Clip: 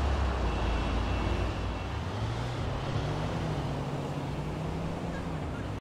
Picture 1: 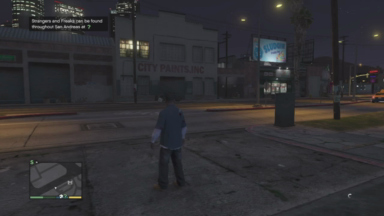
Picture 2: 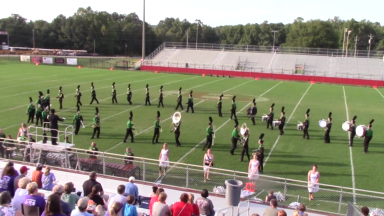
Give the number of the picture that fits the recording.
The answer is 1